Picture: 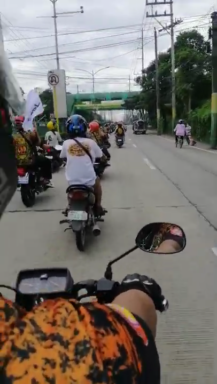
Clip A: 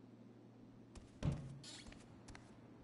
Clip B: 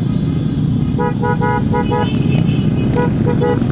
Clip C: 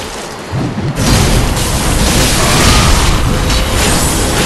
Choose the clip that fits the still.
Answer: B